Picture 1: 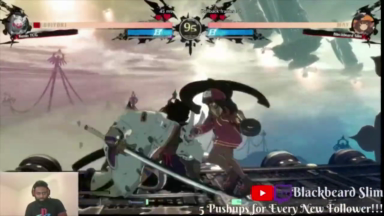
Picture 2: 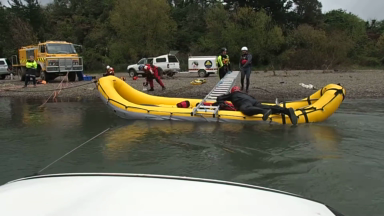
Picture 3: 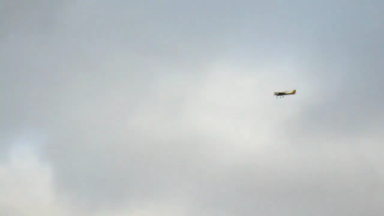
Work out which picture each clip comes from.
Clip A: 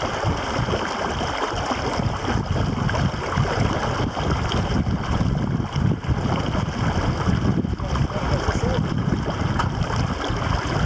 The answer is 2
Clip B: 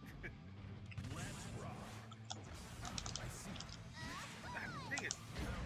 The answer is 1